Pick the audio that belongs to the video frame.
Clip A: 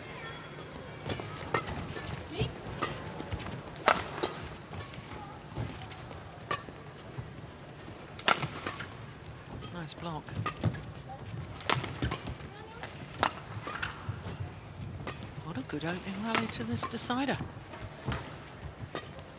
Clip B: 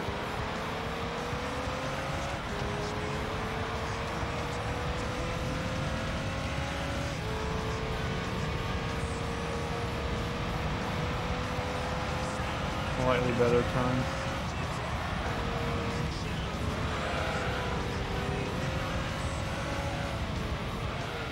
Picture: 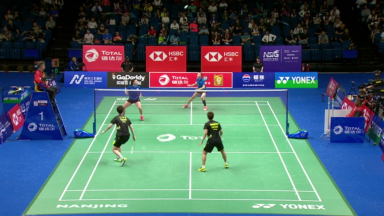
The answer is A